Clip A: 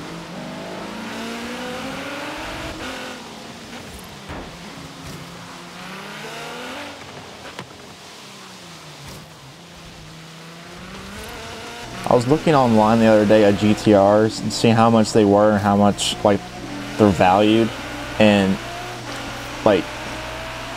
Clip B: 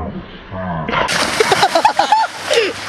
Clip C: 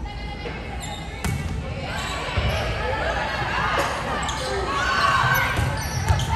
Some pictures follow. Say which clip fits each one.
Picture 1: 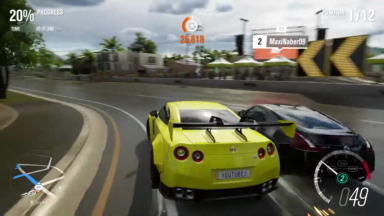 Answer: A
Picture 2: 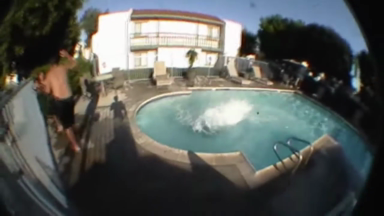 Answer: B